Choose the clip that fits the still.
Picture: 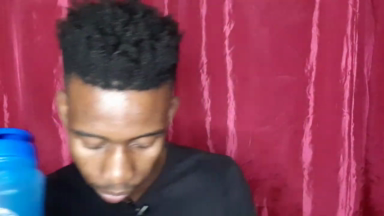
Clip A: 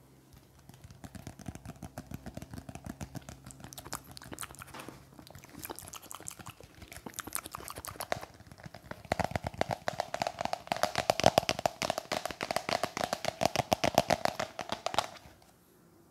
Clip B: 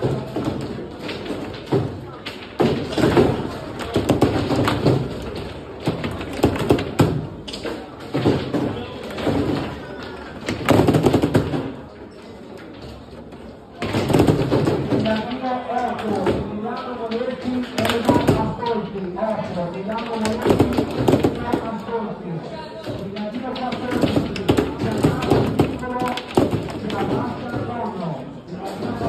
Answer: A